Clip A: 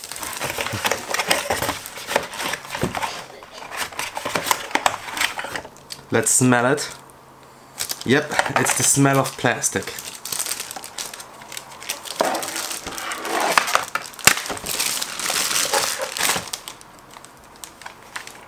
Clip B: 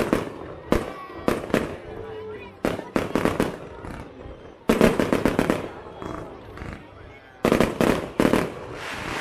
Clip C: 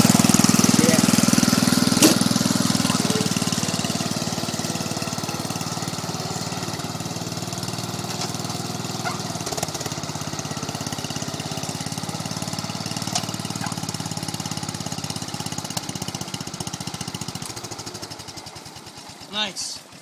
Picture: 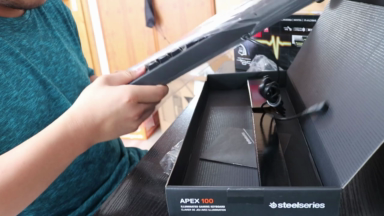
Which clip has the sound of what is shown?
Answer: A